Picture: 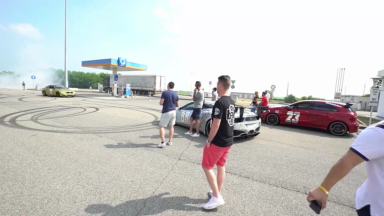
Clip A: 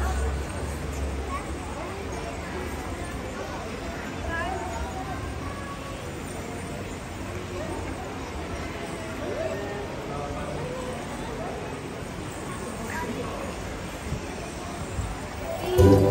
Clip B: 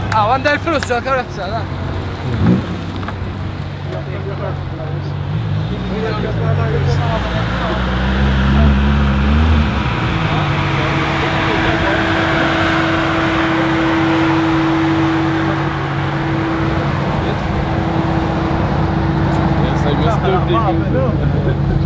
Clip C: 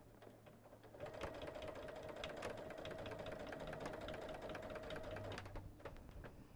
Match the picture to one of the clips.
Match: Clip B